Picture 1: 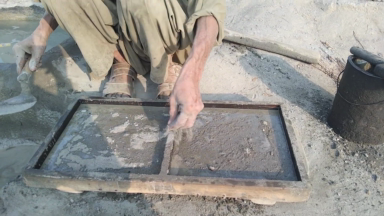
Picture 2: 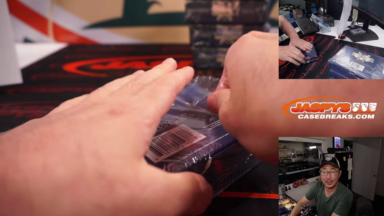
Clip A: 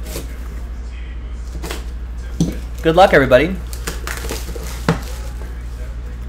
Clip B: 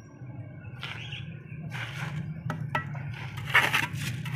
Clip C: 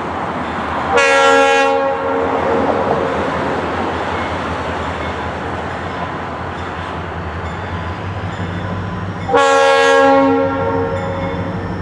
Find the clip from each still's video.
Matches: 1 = B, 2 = A